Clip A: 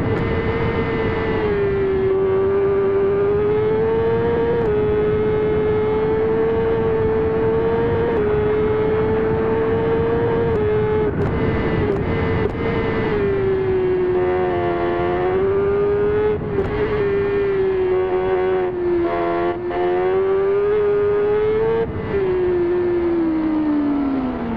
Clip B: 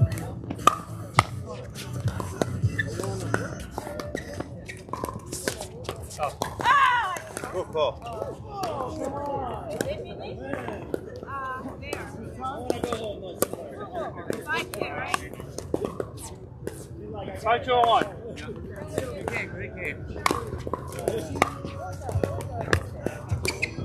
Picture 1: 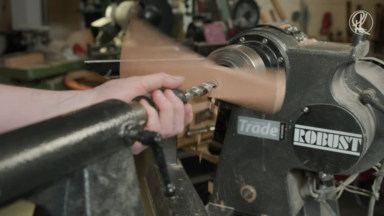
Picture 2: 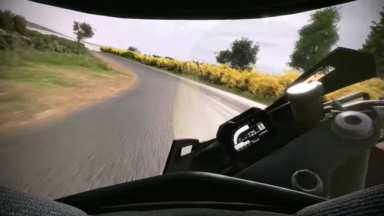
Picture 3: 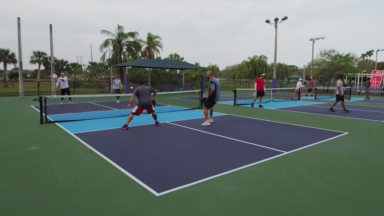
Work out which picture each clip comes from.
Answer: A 2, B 3